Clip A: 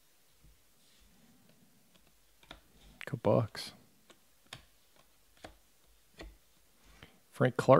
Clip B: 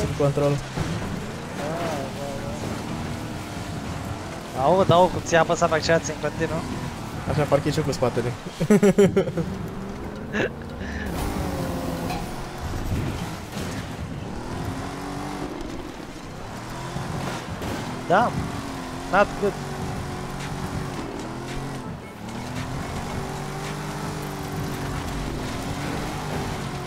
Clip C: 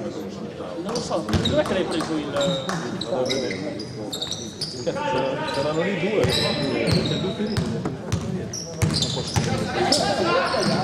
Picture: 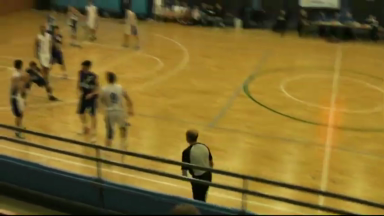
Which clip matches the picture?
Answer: C